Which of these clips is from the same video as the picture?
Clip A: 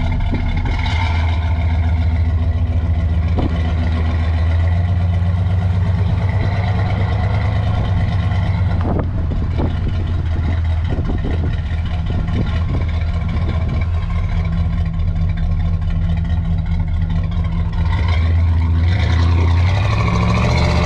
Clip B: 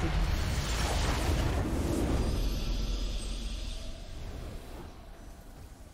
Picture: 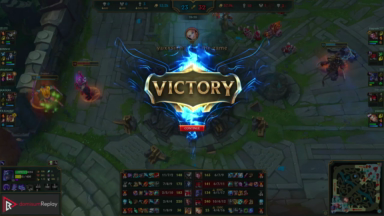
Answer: B